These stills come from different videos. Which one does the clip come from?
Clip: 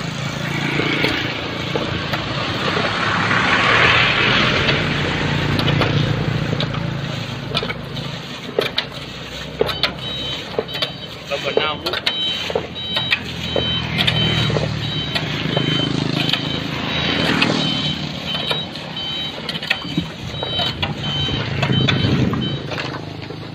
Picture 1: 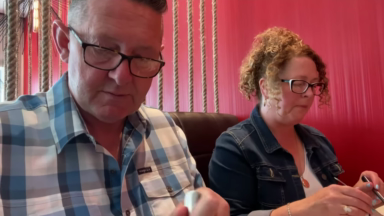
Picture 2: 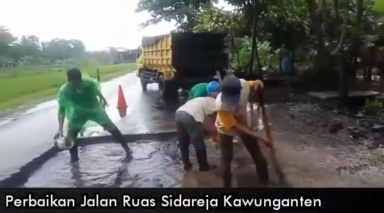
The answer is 2